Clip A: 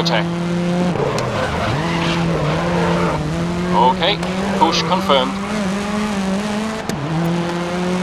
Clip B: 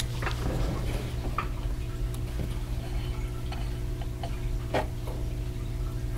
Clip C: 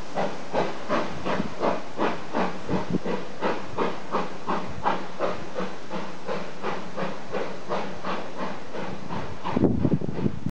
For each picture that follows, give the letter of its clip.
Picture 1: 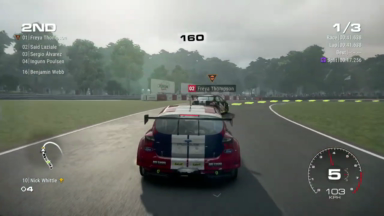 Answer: A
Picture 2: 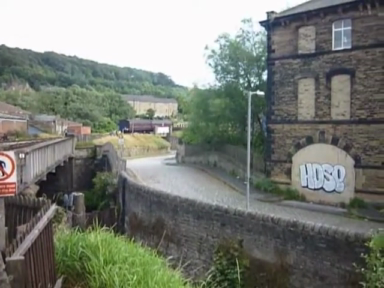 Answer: C